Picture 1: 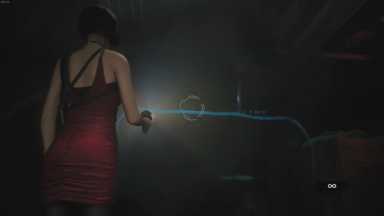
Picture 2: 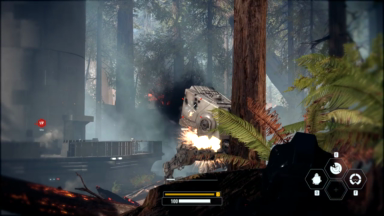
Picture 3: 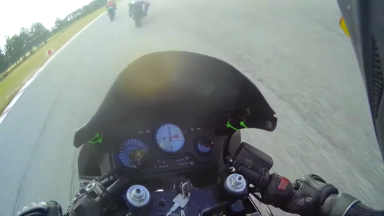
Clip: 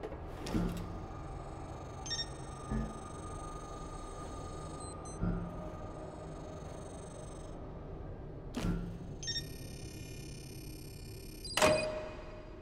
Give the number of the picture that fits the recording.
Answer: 1